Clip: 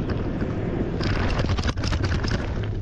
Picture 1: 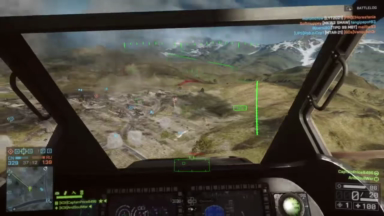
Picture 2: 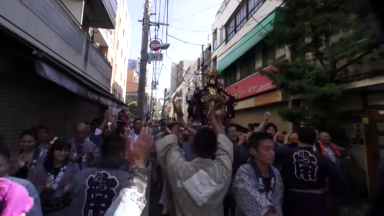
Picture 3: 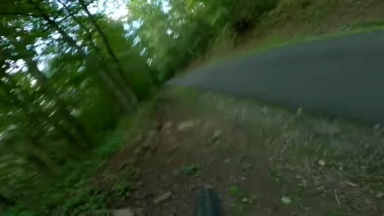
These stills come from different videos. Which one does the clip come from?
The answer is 3